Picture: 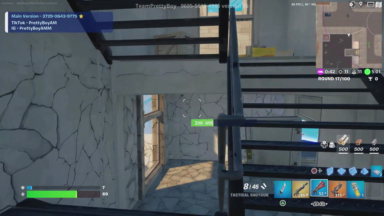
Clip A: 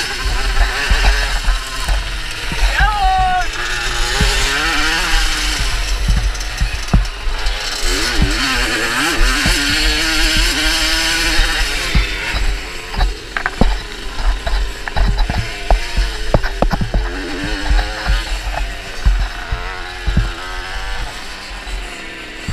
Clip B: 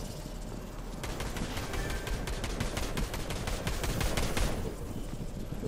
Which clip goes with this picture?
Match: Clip B